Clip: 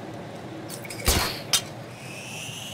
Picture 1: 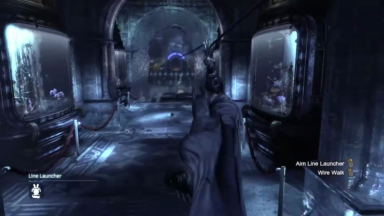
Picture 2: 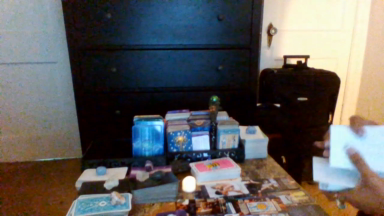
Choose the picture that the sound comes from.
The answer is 1